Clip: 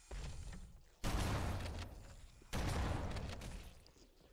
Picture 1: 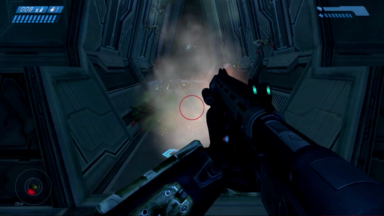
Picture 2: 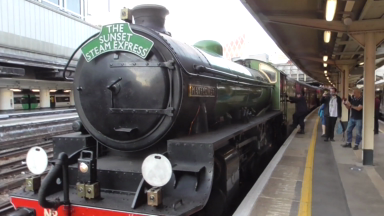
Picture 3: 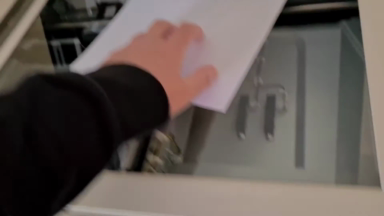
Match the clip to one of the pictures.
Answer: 1